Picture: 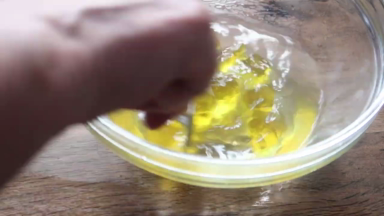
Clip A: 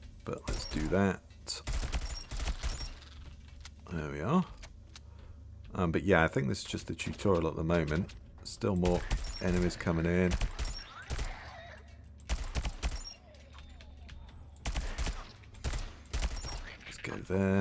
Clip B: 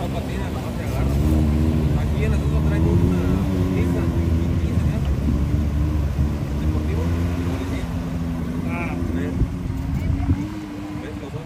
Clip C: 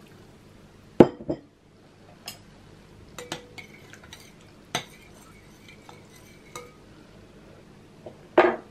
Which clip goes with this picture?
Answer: C